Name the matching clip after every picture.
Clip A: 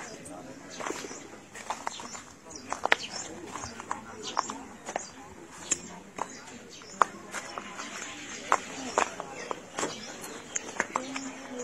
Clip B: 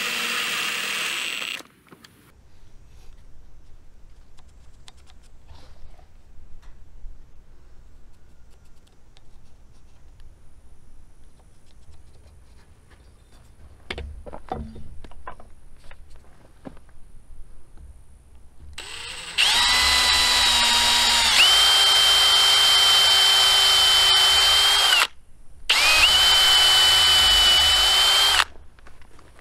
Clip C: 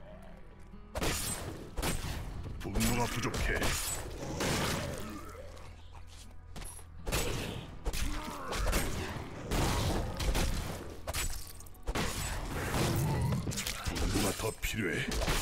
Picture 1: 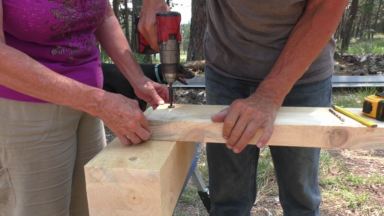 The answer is B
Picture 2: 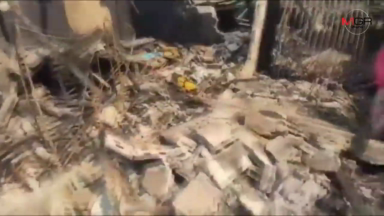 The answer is A